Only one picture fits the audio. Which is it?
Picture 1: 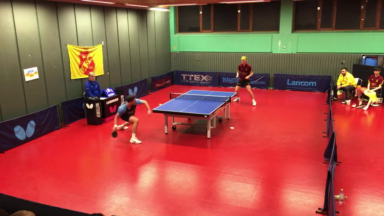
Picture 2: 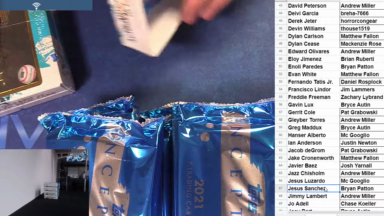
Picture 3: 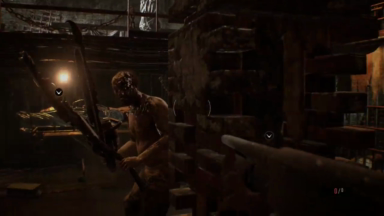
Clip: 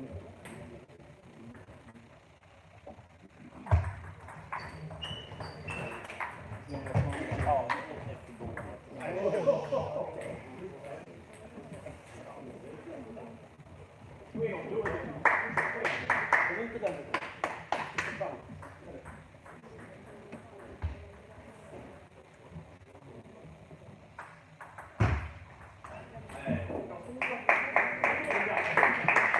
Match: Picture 1